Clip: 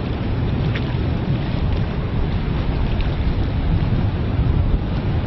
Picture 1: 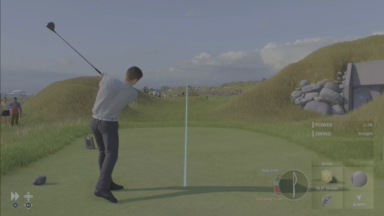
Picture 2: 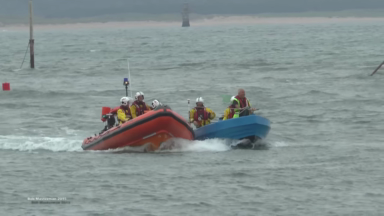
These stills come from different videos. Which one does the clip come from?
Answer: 2